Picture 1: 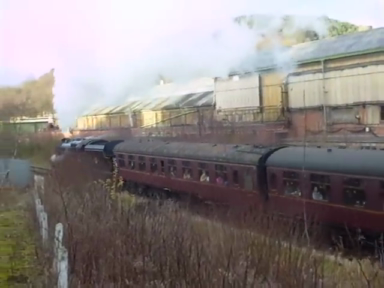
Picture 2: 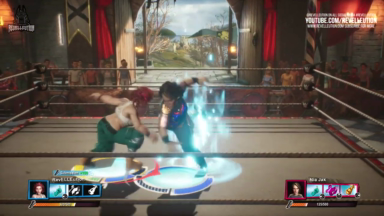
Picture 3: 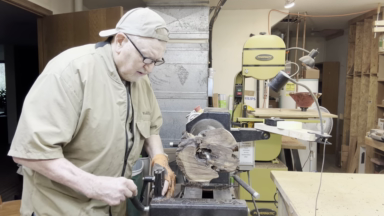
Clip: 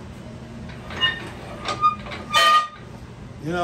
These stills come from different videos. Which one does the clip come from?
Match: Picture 3